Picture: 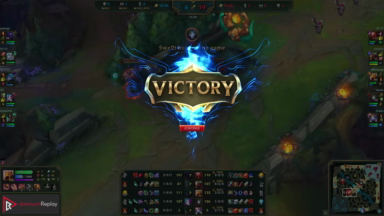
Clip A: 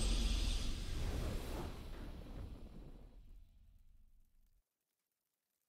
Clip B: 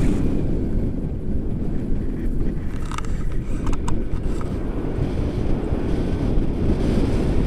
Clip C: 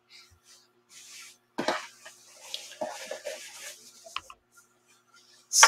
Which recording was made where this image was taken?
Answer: A